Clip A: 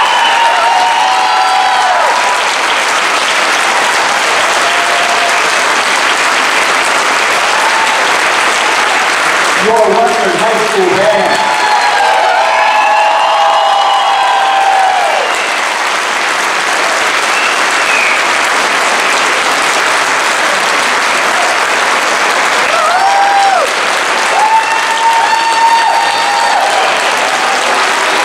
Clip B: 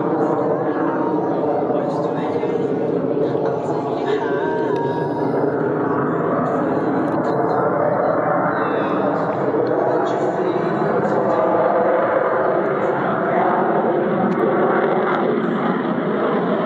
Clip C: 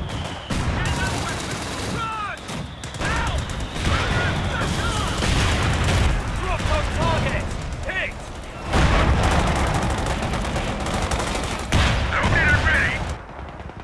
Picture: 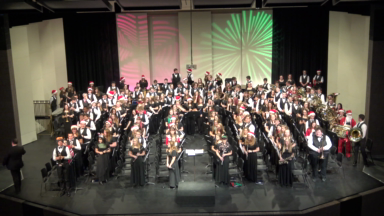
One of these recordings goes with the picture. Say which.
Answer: A